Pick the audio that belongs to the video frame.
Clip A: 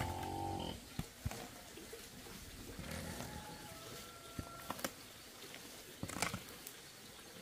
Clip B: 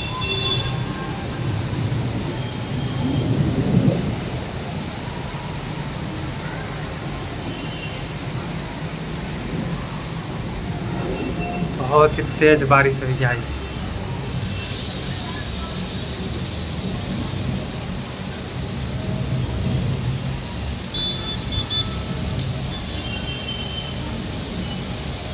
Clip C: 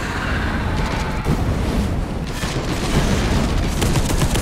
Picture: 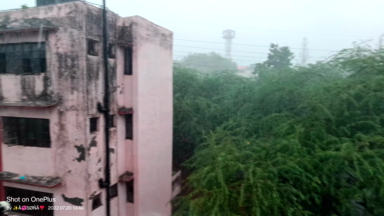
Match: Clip B